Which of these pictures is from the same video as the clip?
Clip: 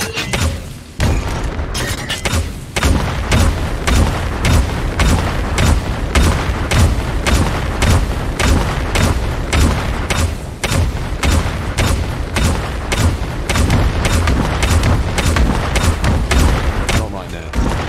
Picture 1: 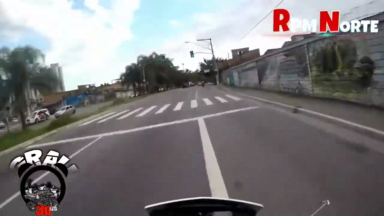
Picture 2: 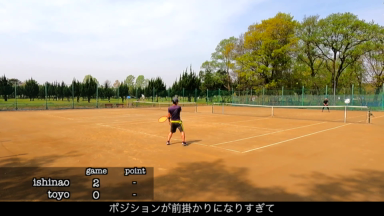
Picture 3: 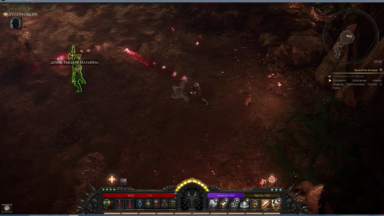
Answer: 3